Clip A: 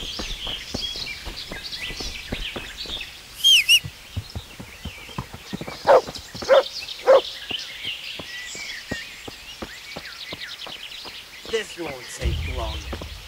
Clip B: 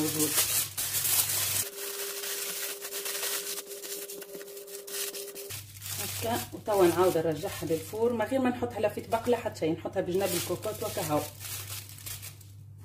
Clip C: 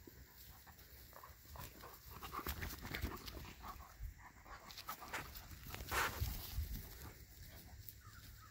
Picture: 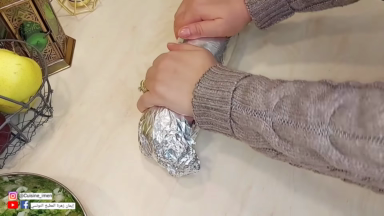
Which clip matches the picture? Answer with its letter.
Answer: B